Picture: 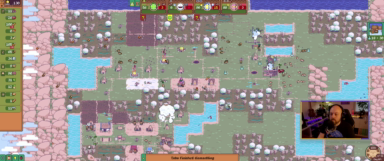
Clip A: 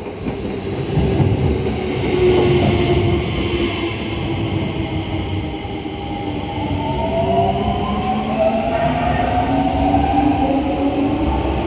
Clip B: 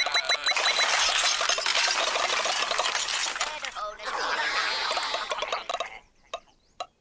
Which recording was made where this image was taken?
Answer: B